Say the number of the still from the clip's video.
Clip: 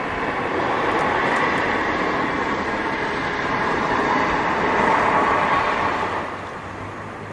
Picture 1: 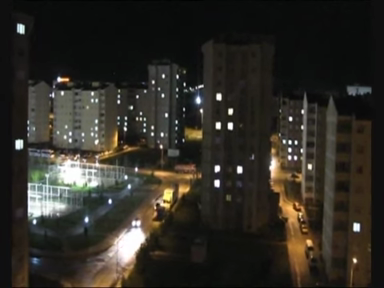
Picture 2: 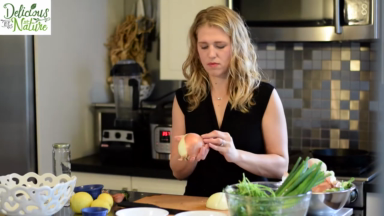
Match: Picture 1